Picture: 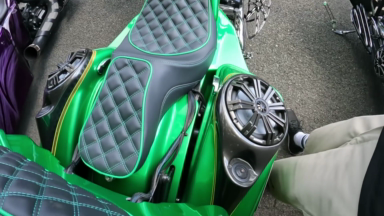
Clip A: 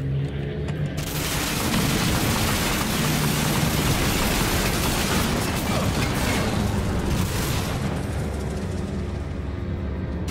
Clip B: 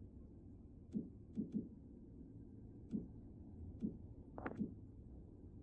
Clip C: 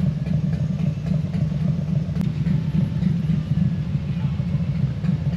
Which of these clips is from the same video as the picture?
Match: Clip C